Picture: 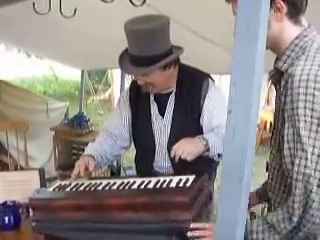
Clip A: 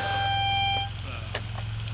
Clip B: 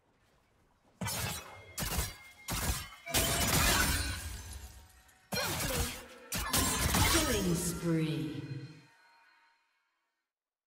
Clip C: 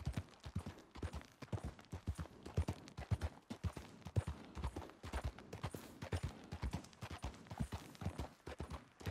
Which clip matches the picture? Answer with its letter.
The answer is A